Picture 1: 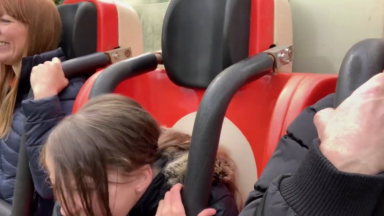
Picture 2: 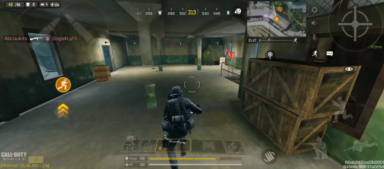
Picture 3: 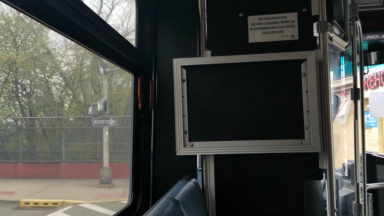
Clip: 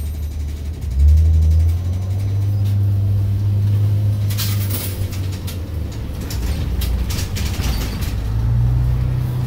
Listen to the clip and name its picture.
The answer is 3